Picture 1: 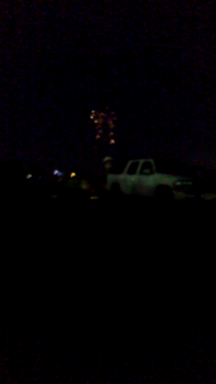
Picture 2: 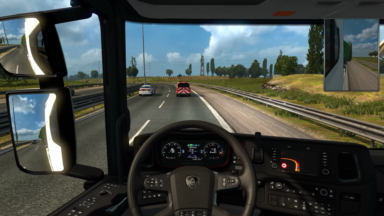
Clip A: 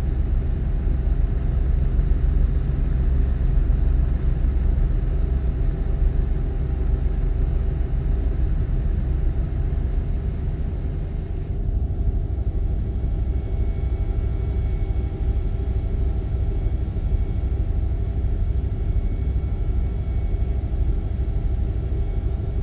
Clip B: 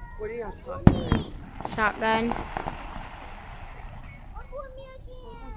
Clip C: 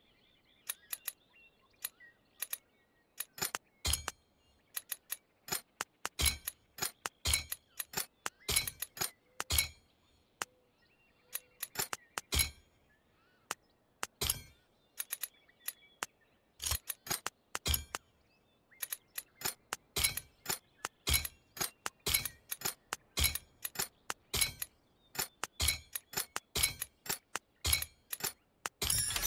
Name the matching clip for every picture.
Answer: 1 B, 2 A